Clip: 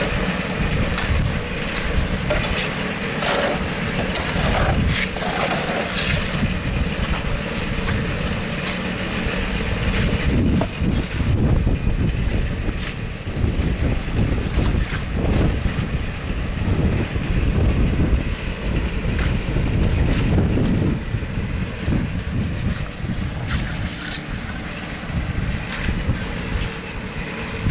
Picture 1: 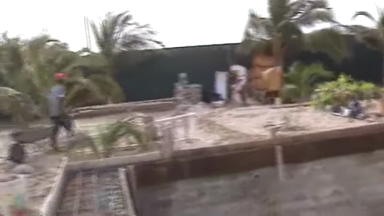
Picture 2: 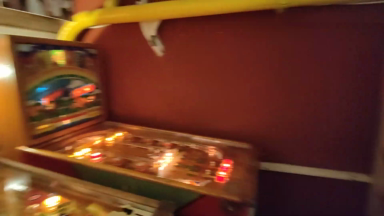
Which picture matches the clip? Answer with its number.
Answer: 1